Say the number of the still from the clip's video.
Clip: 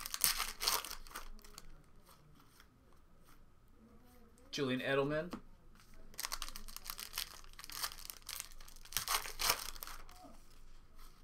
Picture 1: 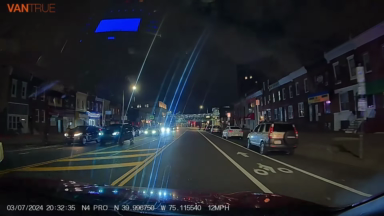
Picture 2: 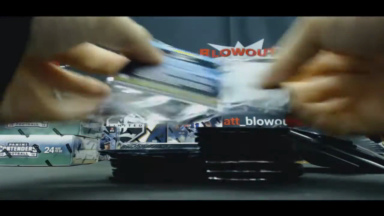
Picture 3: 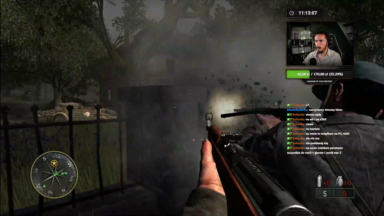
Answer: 2